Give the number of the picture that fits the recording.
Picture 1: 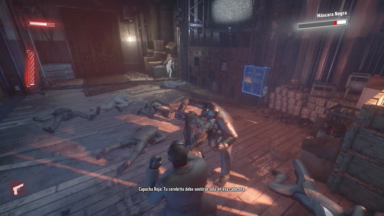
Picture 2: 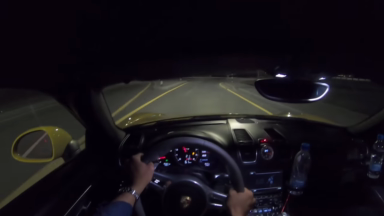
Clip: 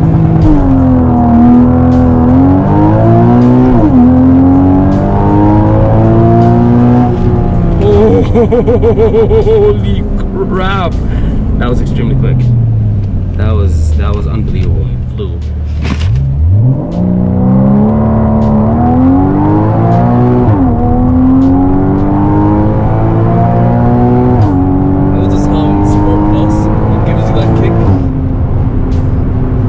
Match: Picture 2